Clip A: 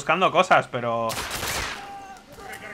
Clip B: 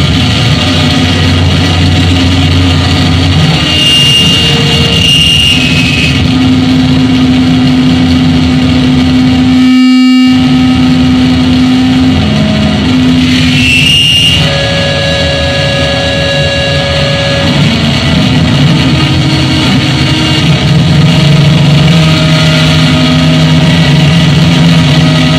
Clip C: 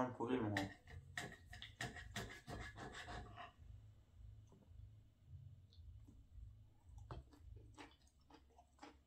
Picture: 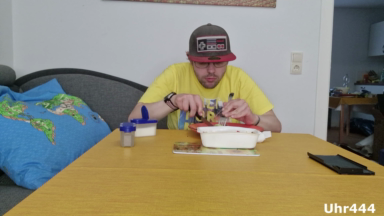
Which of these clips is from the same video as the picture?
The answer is C